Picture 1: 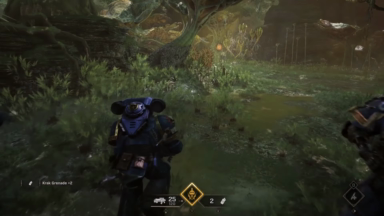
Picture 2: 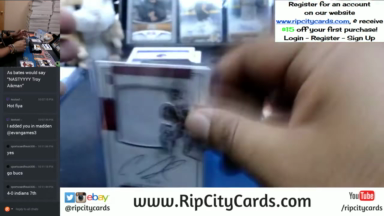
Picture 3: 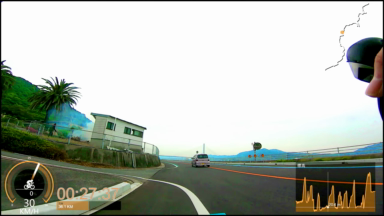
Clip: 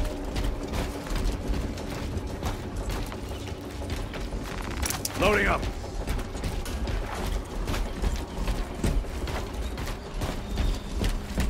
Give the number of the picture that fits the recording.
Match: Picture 1